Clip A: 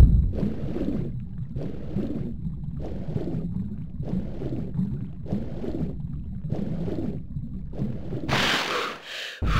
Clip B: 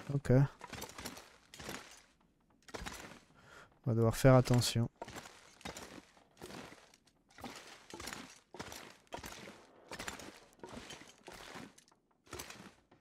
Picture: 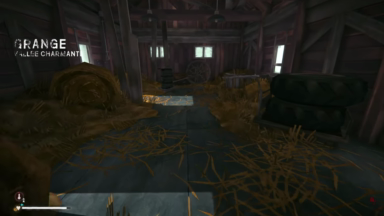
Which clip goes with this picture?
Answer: B